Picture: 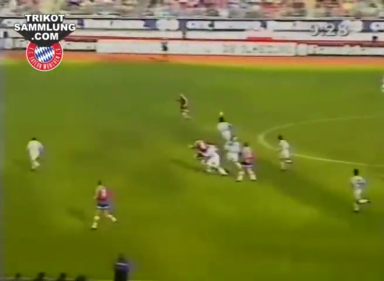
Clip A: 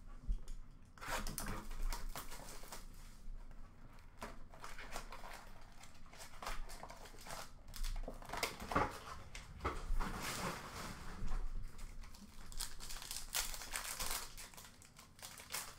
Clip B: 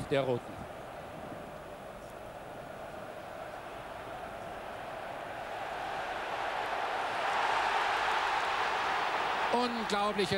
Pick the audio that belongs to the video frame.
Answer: B